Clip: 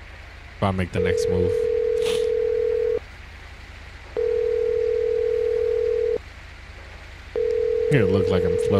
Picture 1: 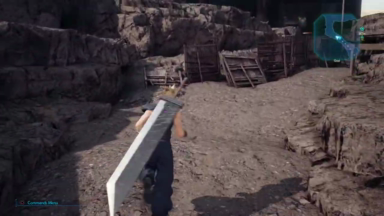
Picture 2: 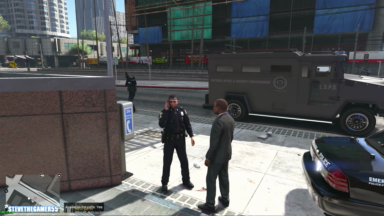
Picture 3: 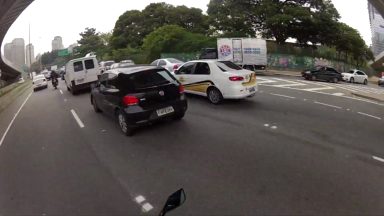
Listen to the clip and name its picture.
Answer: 2